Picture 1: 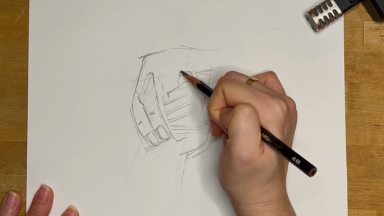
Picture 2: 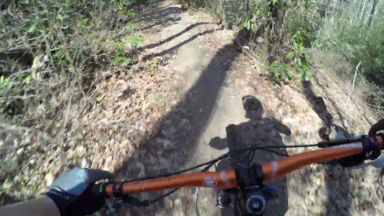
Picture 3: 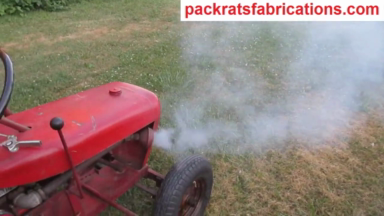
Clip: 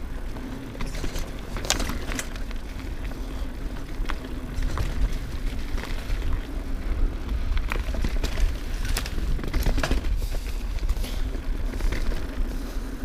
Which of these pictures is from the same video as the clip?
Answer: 2